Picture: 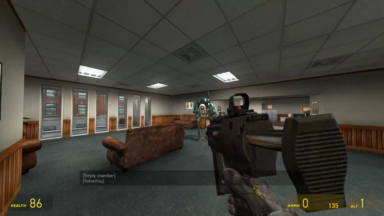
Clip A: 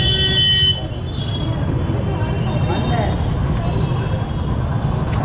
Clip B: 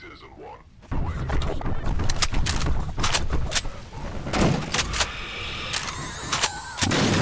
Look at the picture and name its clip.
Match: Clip B